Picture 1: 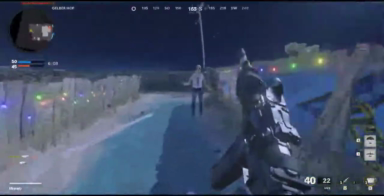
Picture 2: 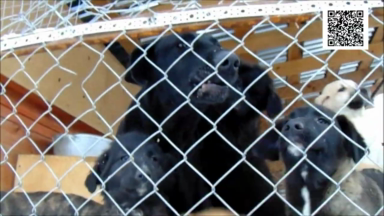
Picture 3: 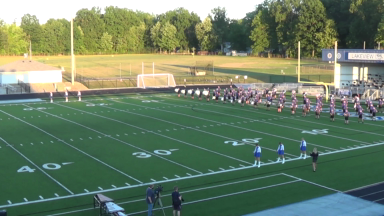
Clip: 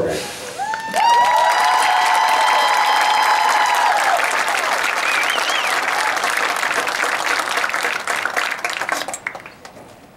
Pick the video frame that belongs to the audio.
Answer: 3